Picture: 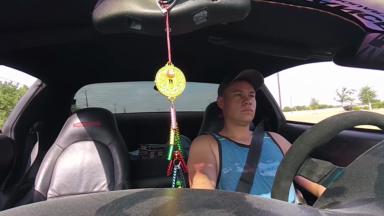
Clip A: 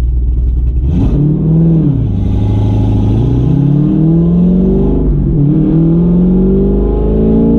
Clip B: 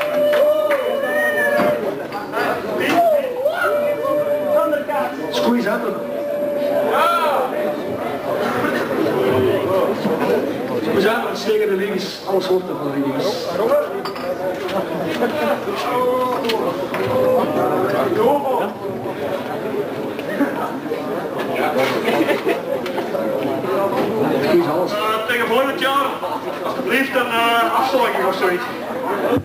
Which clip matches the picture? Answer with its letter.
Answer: A